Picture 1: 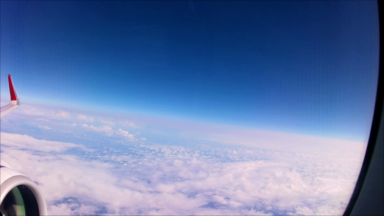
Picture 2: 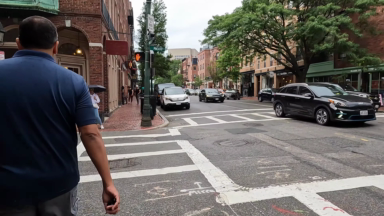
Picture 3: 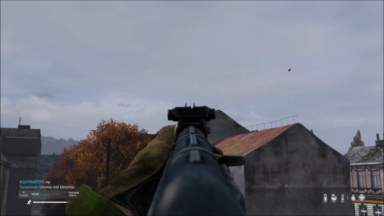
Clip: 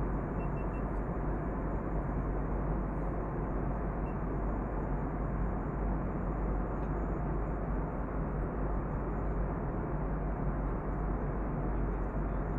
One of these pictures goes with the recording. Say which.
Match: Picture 1